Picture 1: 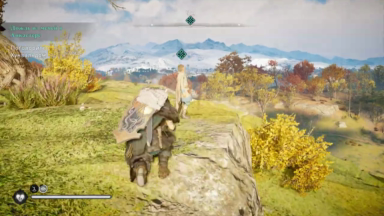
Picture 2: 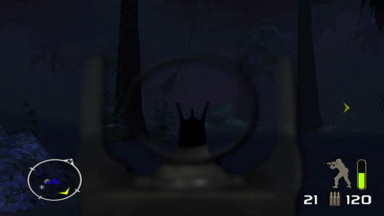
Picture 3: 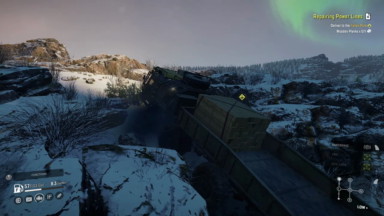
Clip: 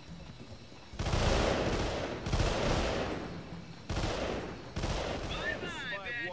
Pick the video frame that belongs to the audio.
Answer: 2